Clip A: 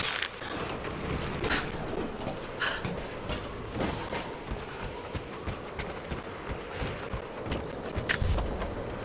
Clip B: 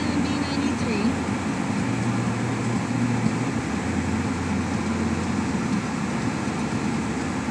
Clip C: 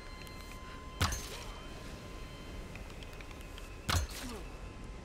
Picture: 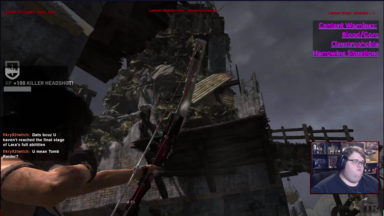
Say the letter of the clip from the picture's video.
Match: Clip C